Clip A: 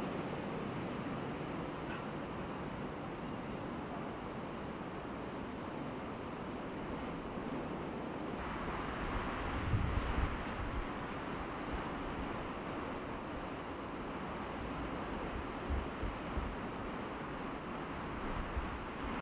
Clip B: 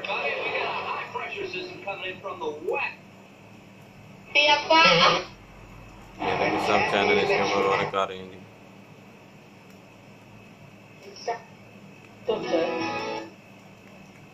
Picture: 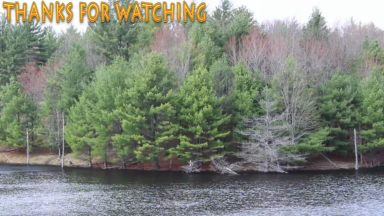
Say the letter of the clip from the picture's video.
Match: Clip A